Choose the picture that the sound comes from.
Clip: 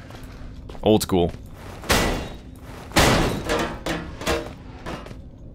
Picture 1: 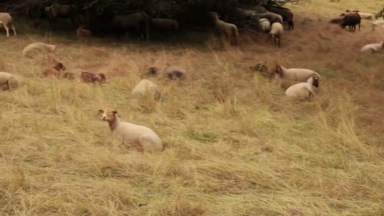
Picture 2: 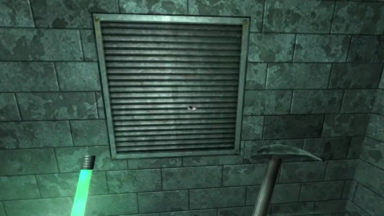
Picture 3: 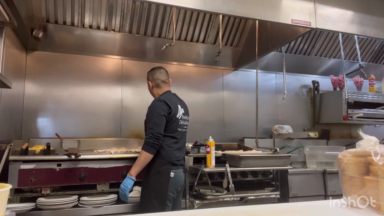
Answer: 2